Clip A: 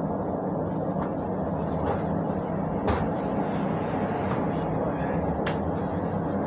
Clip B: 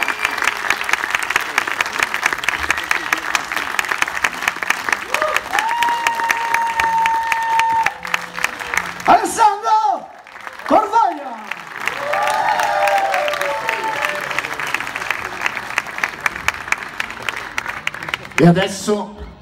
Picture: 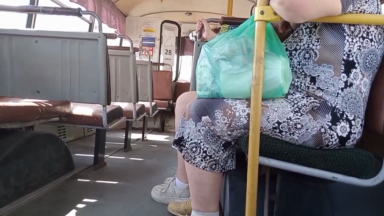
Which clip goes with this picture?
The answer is A